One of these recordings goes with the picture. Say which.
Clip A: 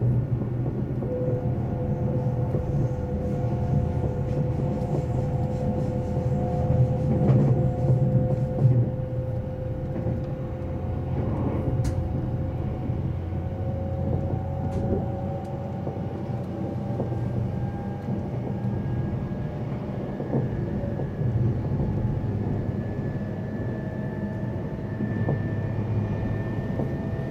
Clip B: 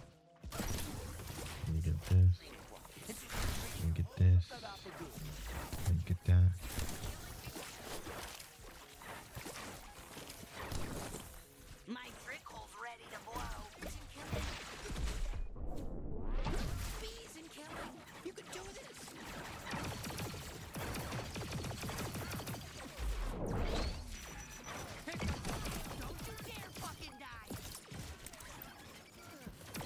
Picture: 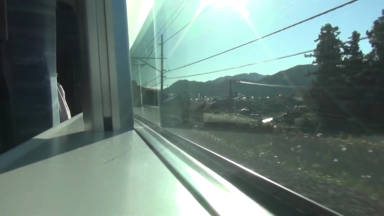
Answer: A